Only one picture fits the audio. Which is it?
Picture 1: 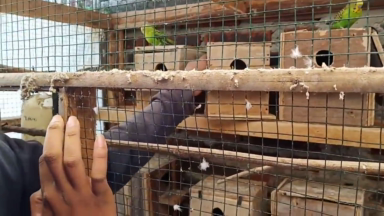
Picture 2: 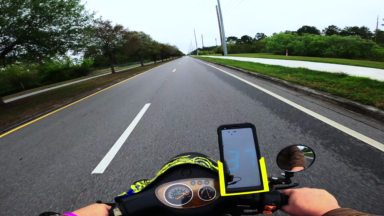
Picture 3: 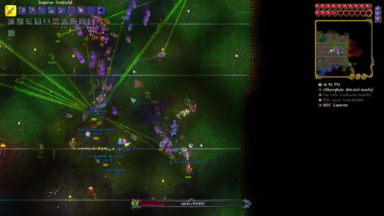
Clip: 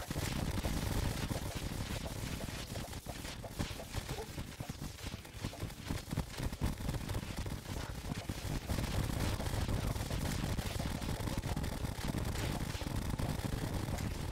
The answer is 3